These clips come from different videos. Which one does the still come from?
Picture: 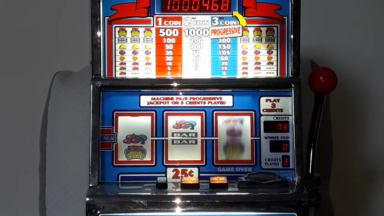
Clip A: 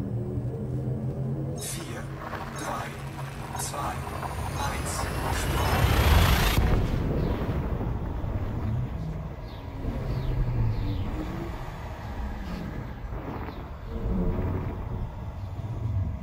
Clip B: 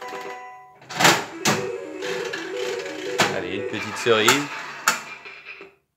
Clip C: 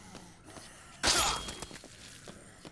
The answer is B